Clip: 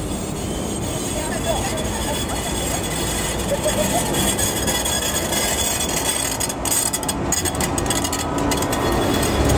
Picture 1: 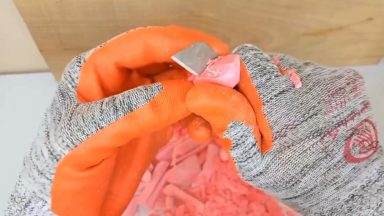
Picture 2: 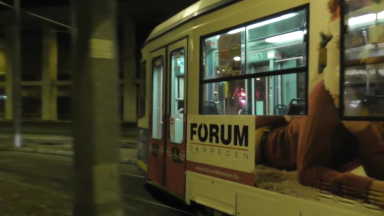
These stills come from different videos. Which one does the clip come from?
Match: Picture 2